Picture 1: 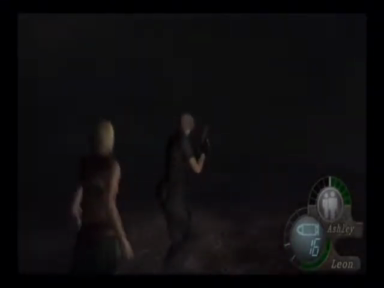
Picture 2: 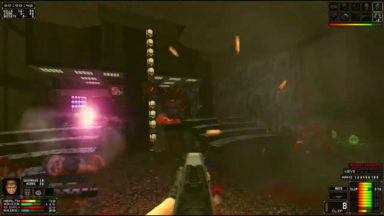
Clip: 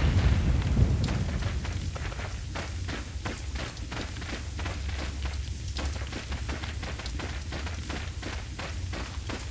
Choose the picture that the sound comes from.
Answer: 1